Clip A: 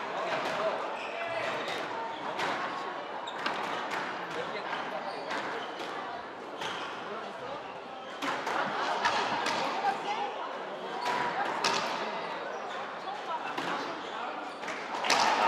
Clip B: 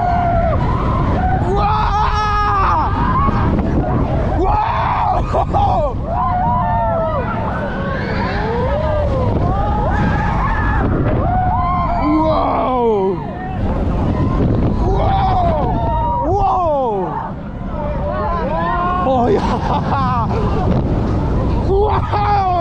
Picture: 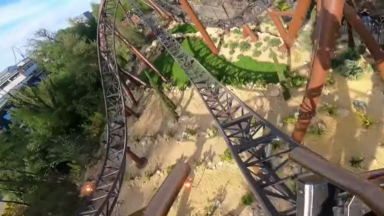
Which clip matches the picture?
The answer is B